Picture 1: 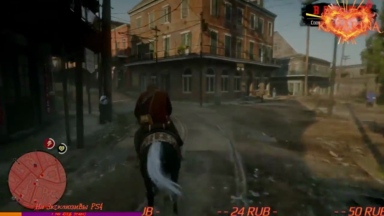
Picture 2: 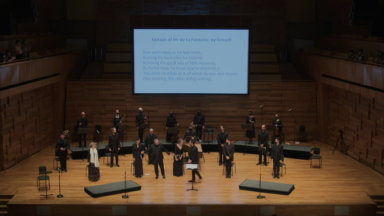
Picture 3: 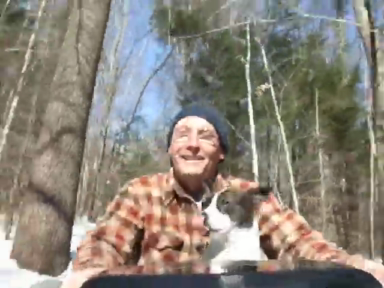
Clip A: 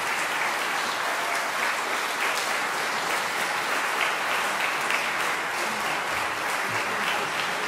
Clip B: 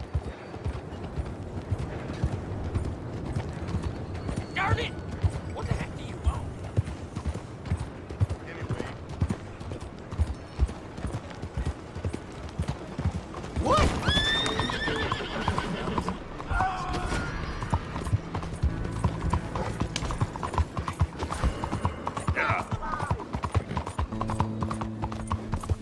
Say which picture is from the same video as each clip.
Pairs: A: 2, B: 1